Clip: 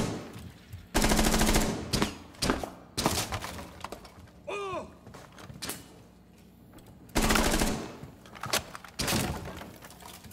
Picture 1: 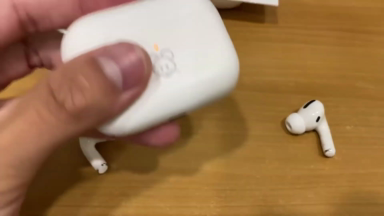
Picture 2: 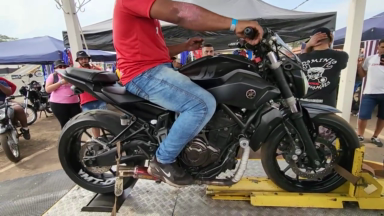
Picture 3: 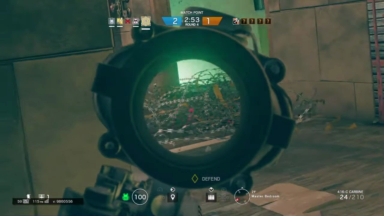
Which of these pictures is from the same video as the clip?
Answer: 3